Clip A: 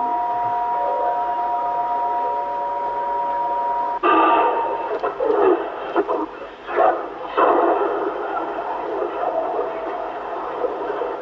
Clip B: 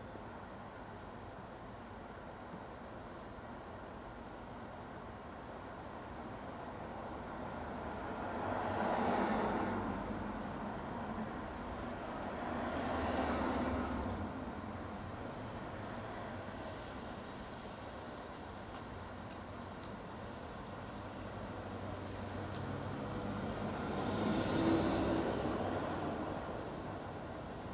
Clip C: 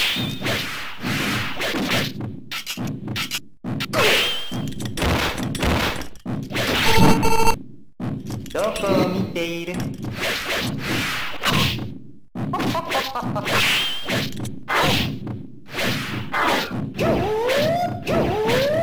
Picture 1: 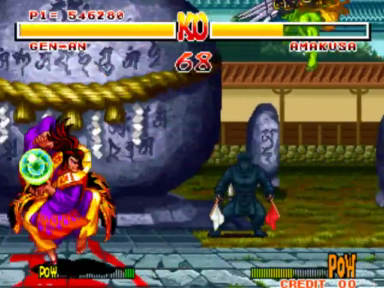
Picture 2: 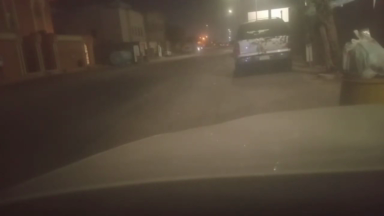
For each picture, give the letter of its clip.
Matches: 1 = C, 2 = B